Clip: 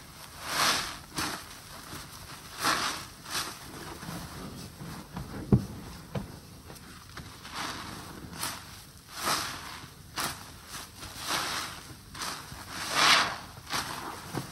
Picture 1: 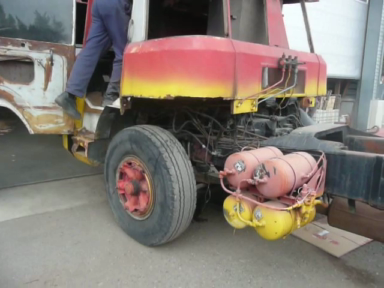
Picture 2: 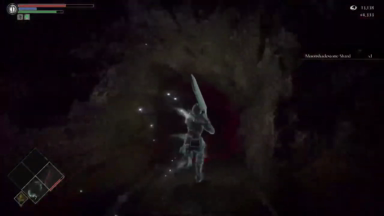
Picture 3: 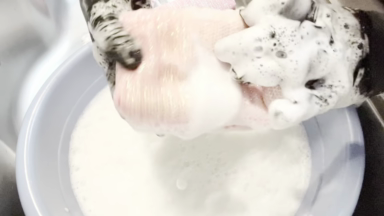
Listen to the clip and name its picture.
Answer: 3